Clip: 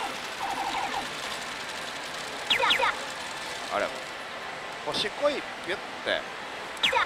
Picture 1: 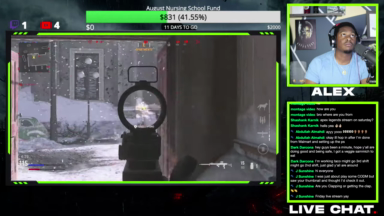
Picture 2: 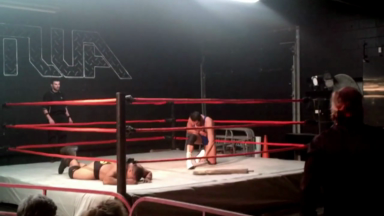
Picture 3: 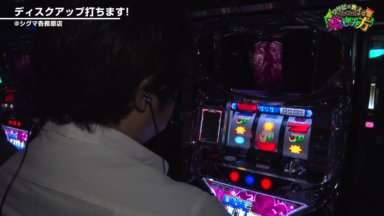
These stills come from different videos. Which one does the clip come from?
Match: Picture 3